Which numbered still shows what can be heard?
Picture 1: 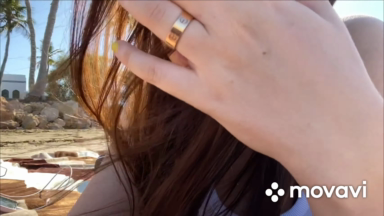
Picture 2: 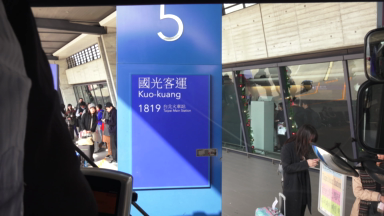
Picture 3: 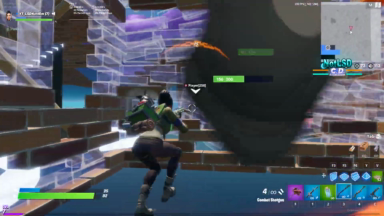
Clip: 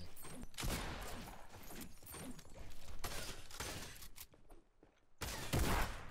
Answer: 3